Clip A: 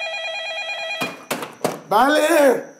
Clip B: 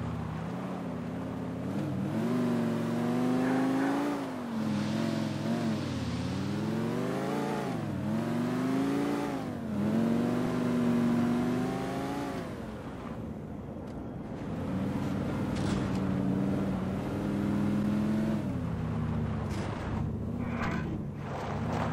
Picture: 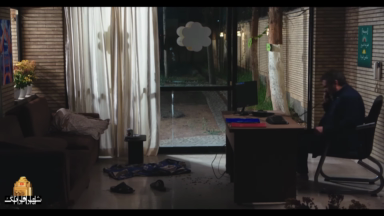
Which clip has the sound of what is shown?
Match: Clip A